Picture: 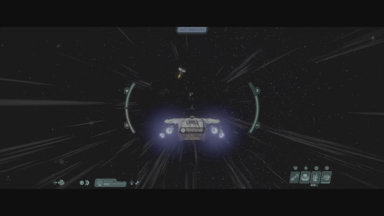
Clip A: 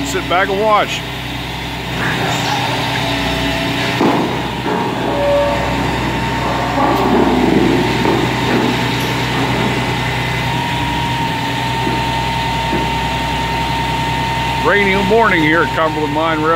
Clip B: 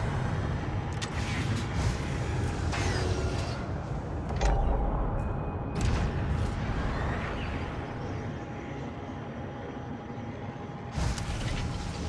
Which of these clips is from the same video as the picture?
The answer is B